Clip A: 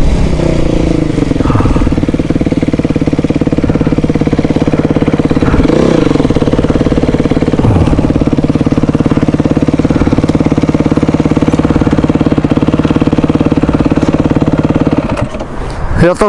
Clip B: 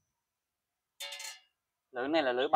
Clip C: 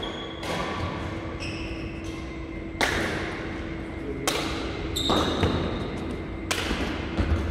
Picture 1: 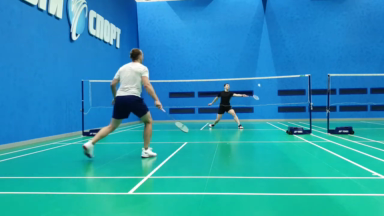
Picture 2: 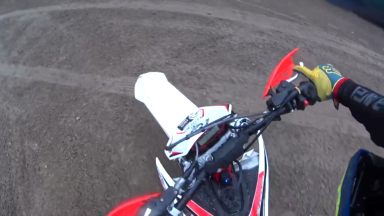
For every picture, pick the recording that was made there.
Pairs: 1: C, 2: A